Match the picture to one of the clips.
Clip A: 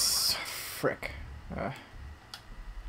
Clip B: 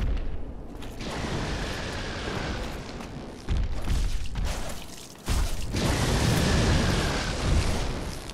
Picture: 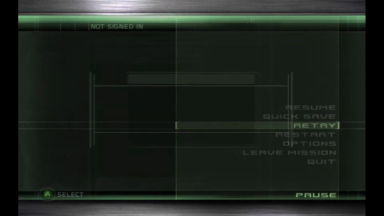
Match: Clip A